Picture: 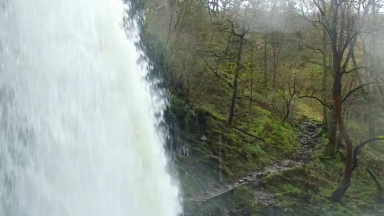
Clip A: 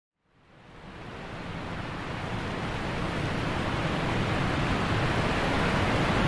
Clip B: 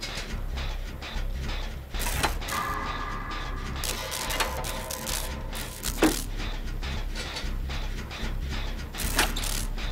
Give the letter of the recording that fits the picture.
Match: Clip A